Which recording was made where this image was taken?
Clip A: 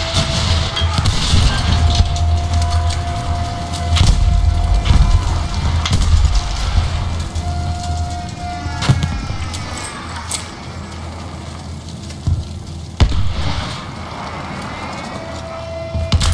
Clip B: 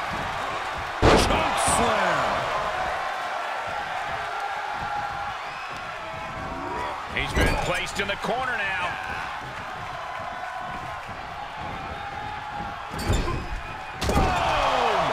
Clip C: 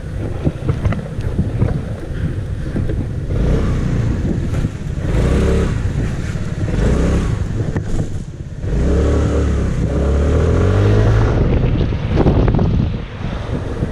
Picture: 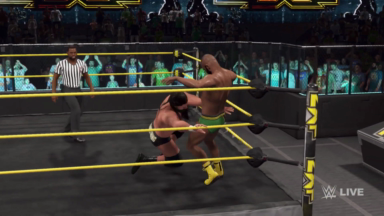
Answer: B